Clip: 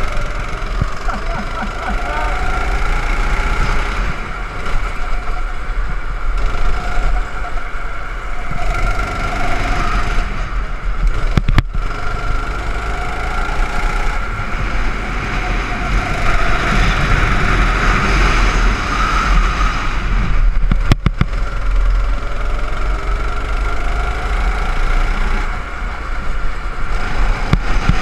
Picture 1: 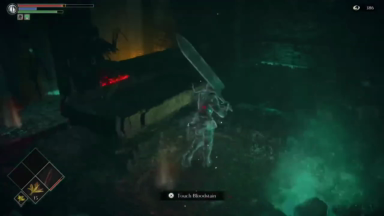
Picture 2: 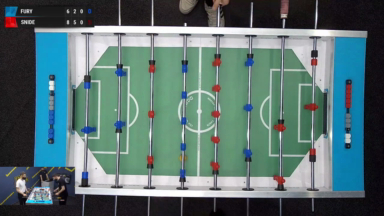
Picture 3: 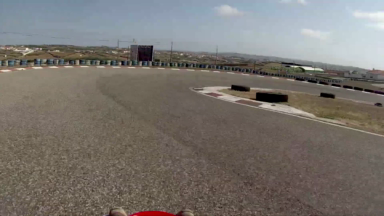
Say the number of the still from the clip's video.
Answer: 3